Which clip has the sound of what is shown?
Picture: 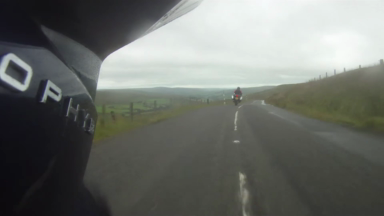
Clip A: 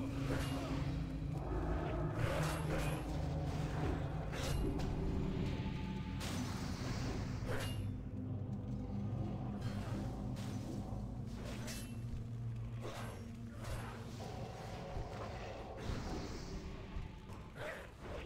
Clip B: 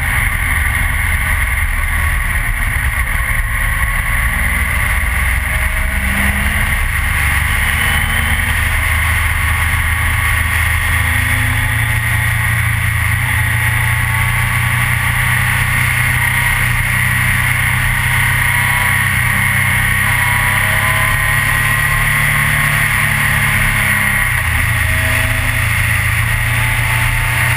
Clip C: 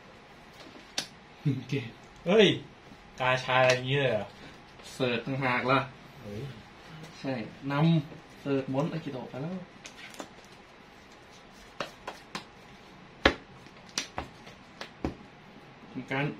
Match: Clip B